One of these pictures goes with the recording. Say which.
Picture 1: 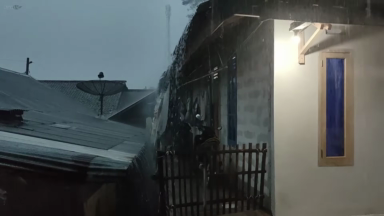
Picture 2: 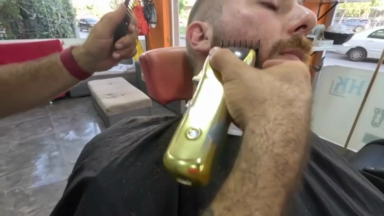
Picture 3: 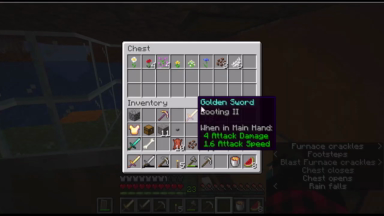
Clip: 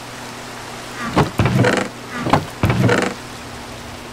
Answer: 3